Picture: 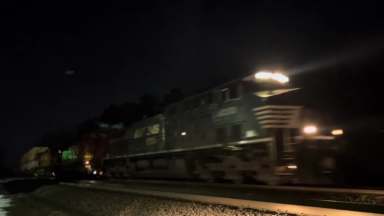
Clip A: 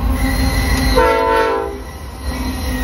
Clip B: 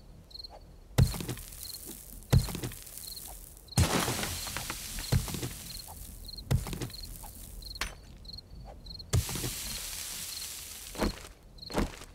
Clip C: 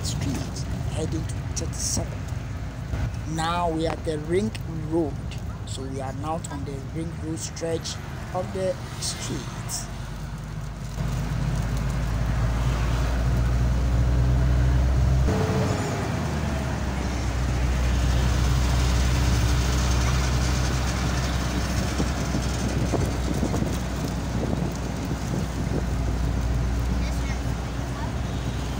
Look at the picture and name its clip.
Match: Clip A